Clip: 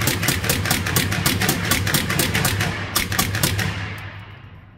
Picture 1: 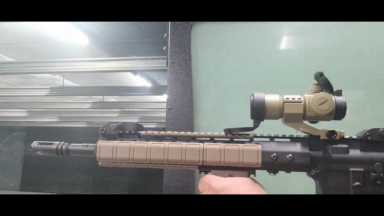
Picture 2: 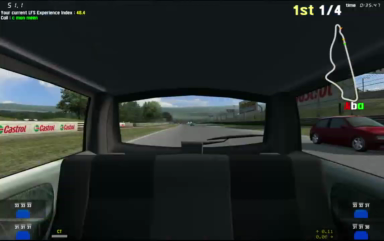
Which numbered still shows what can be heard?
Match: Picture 1